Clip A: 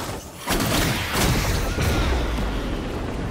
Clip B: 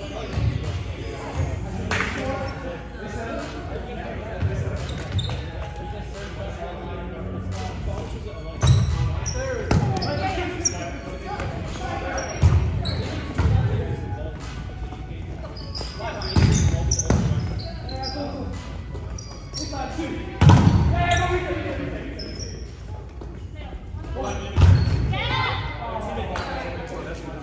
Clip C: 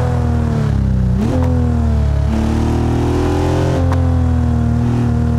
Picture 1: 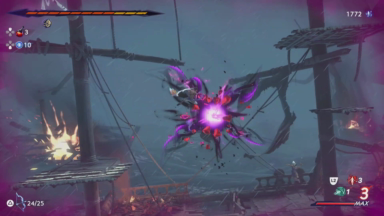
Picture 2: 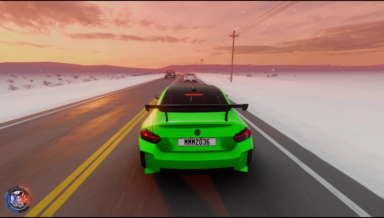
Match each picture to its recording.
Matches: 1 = A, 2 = C